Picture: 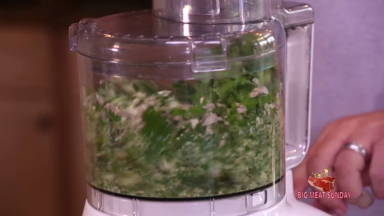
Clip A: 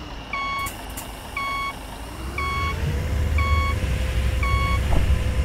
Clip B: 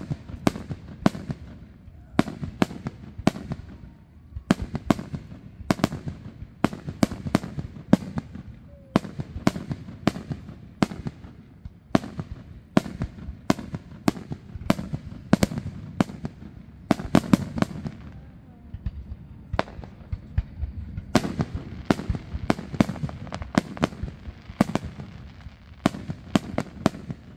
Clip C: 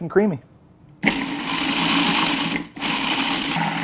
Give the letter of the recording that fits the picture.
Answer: C